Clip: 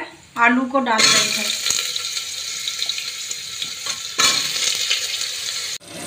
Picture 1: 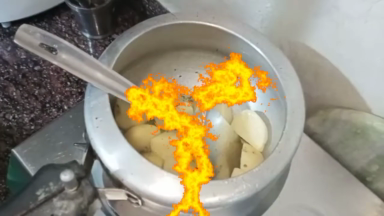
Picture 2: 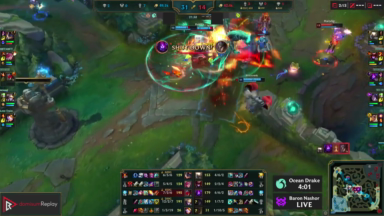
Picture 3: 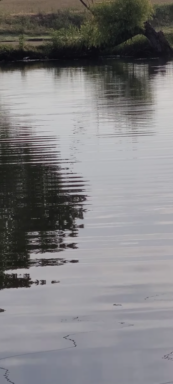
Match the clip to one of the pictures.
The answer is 1